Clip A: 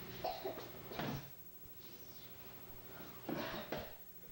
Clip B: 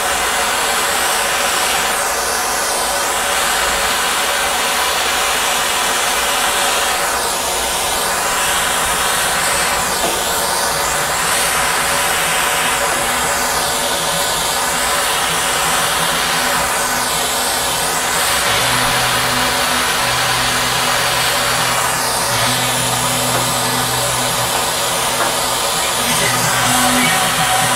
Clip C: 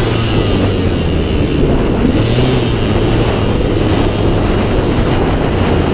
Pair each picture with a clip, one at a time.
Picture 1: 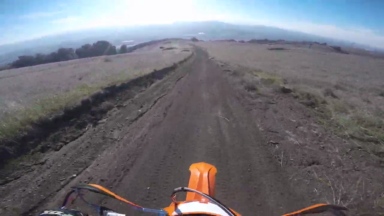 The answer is C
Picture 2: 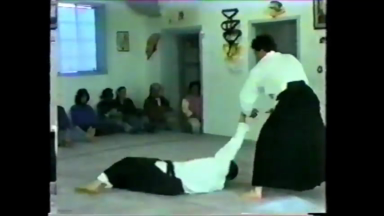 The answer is A